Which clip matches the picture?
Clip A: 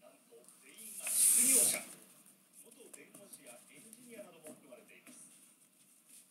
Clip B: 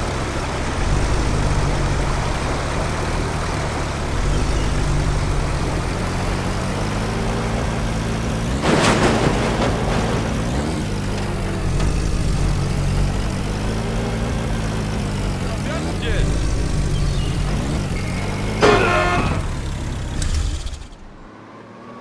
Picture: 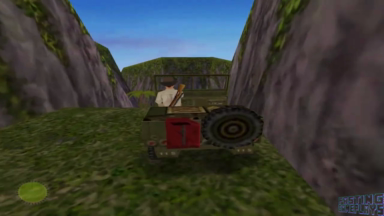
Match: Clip B